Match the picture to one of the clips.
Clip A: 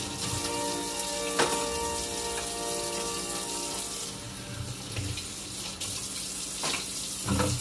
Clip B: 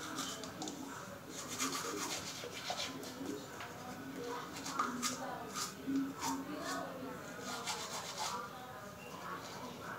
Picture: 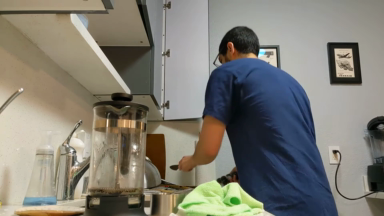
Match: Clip A